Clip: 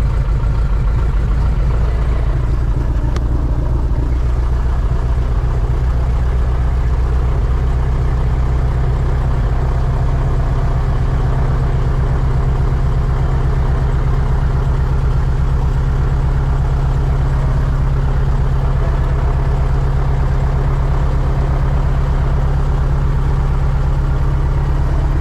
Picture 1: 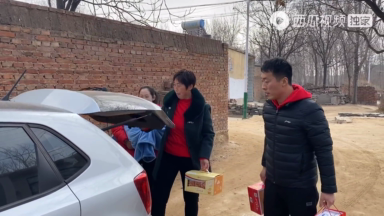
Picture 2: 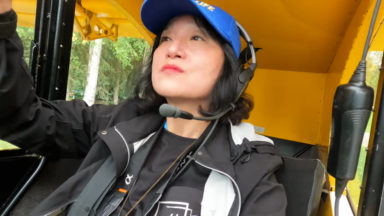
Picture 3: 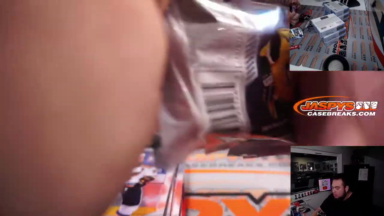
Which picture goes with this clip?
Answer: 2